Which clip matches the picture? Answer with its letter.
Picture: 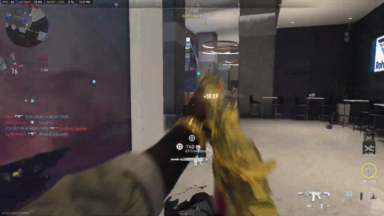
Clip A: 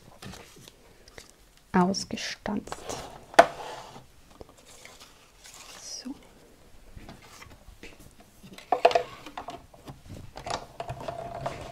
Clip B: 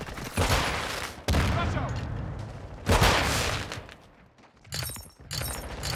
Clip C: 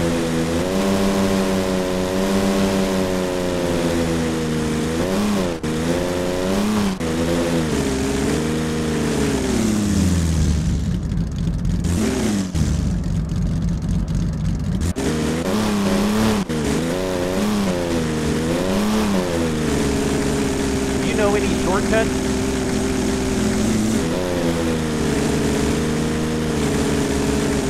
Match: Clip B